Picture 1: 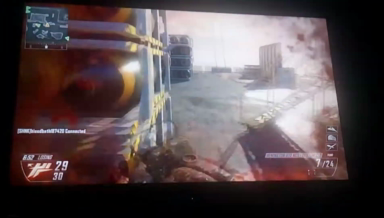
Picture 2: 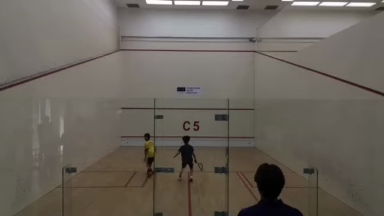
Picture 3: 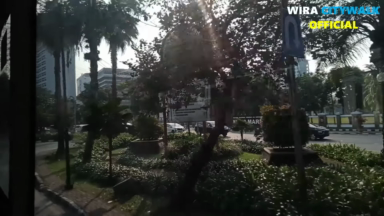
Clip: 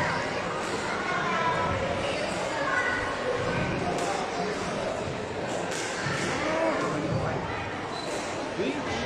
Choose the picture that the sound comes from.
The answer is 2